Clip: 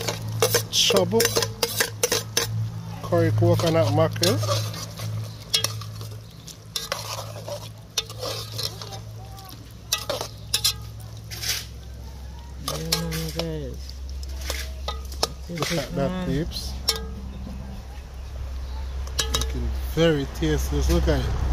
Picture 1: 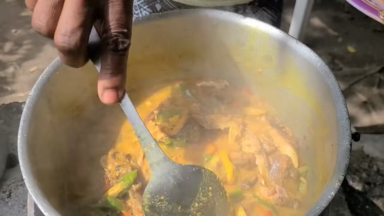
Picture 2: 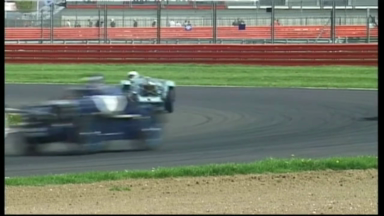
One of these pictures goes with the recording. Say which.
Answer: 1